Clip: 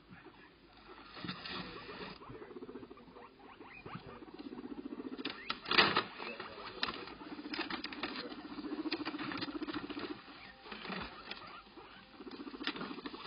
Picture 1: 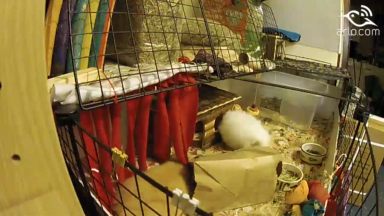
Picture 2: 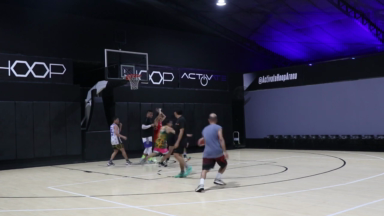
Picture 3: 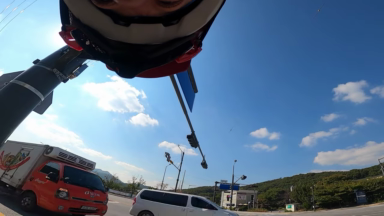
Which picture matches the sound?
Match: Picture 1